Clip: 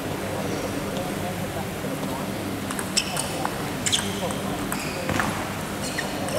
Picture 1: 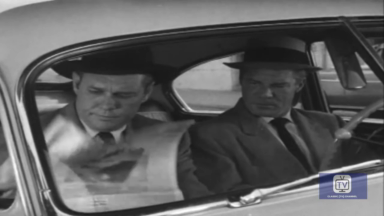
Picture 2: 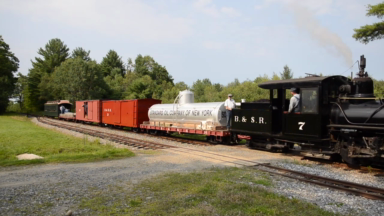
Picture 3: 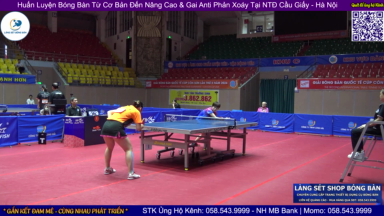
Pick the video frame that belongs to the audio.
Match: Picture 3